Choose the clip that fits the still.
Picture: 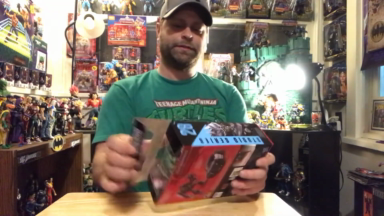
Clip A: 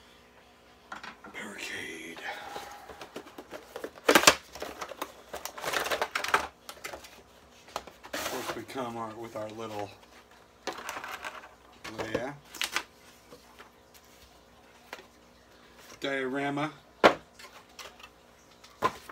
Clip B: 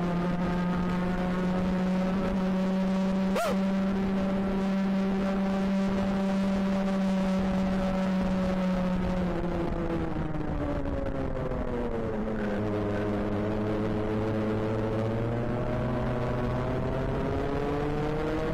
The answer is A